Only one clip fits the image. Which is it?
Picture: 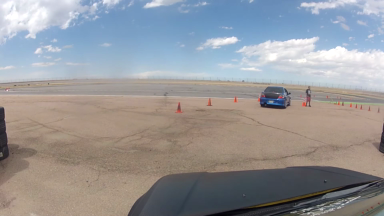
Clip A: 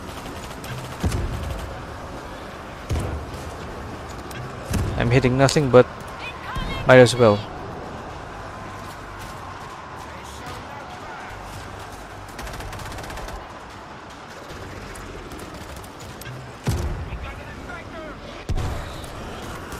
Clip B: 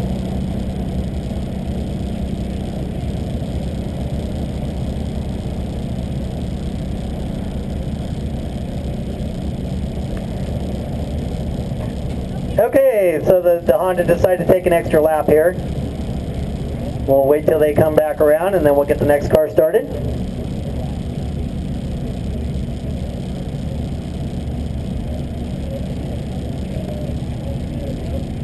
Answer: B